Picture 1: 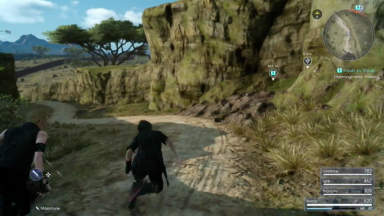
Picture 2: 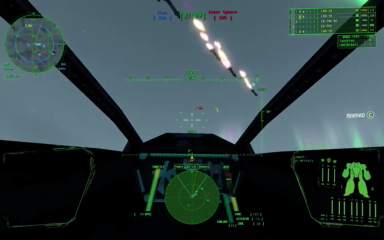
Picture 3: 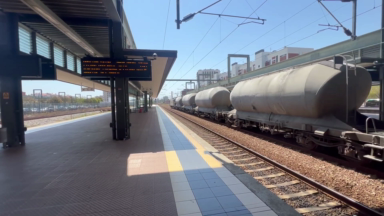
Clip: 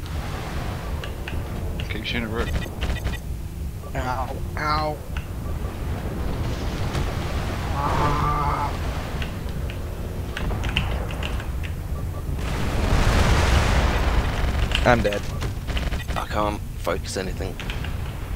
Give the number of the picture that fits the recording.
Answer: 2